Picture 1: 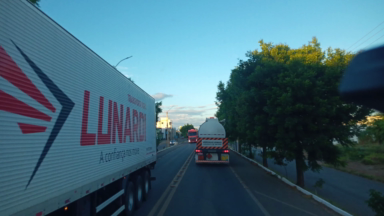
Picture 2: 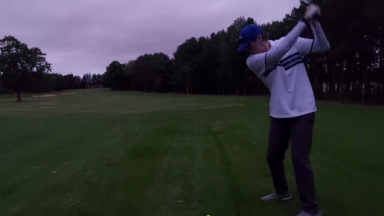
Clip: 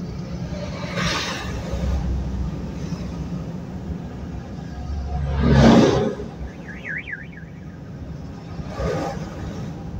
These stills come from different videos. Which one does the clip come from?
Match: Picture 1